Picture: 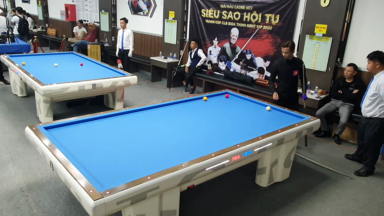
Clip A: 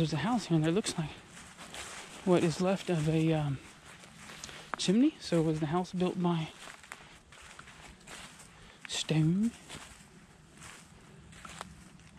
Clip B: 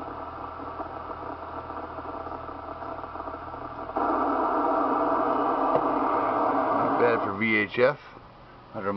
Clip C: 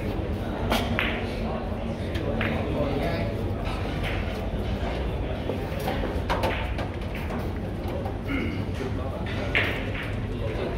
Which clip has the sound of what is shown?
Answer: C